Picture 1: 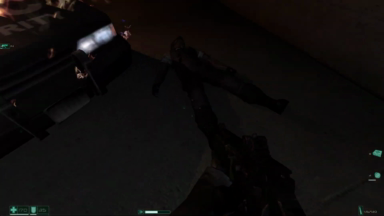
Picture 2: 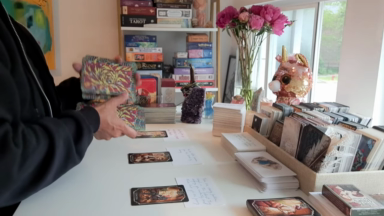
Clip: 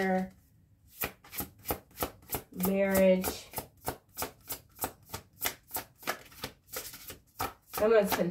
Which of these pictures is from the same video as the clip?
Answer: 2